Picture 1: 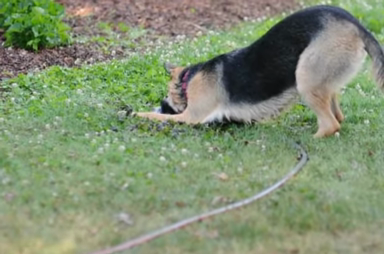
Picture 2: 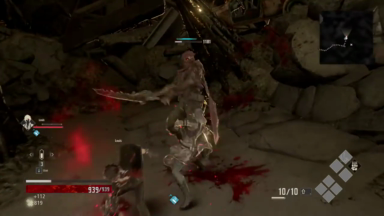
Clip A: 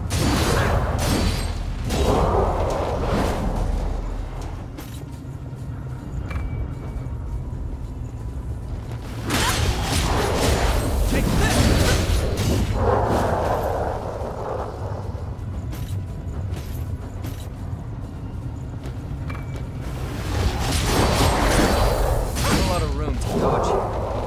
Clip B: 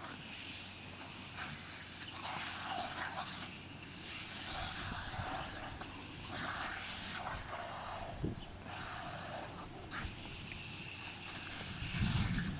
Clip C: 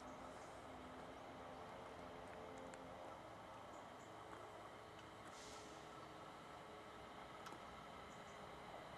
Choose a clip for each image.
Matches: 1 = B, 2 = A